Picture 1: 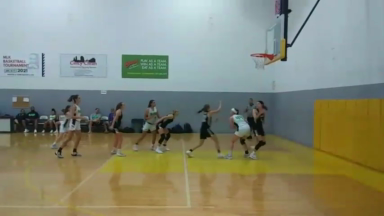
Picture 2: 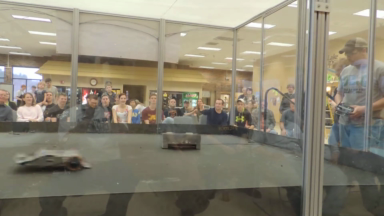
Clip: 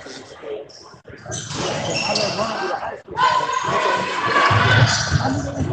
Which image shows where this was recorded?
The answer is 1